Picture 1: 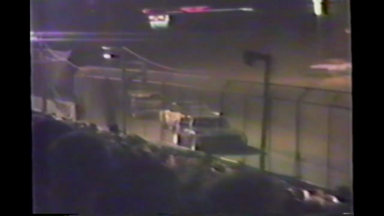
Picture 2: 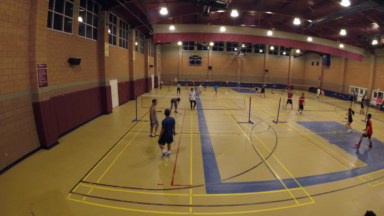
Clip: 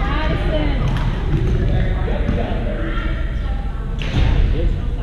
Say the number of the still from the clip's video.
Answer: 2